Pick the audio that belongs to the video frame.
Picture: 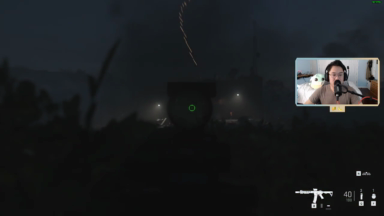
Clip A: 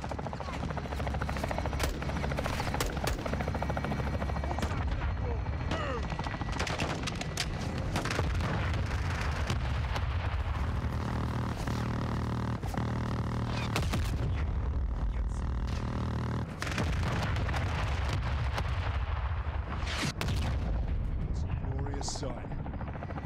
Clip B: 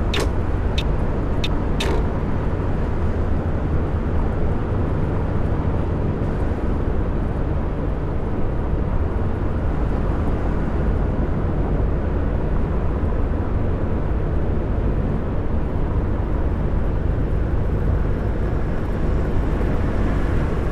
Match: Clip A